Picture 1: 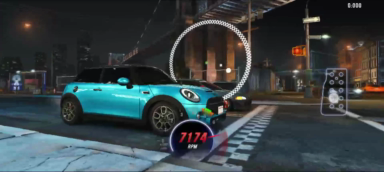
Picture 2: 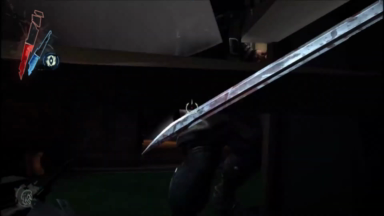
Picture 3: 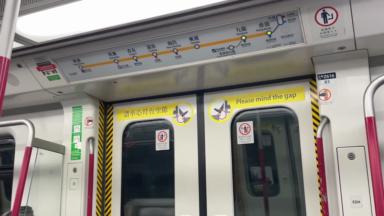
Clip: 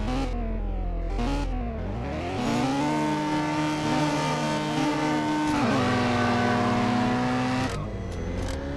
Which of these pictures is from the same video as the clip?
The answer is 1